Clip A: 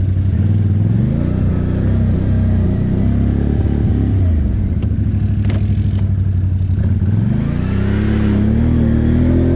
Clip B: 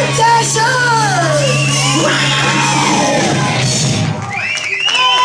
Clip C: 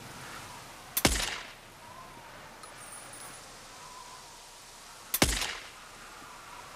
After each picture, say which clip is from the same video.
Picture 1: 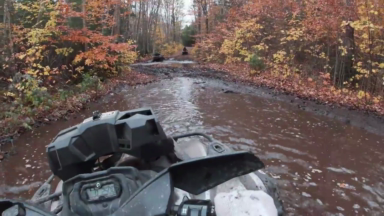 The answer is A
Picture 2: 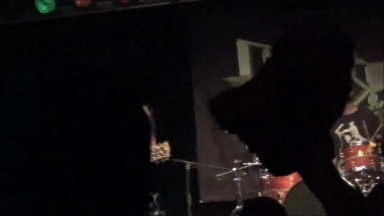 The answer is B